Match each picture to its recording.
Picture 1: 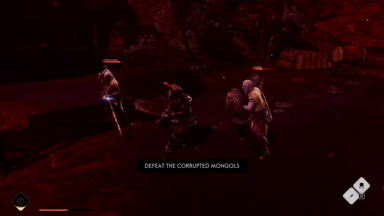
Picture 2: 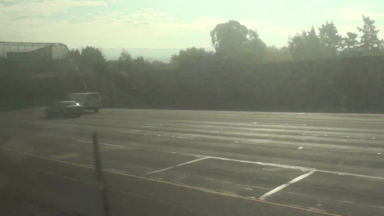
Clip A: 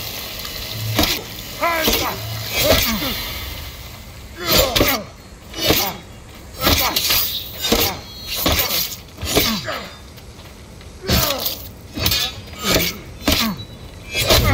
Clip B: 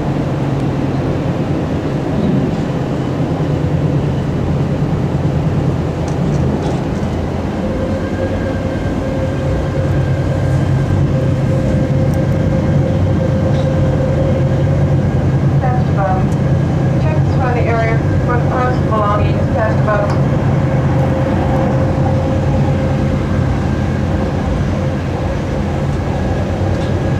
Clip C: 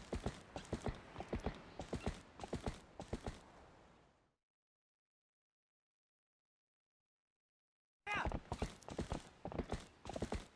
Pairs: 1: A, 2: B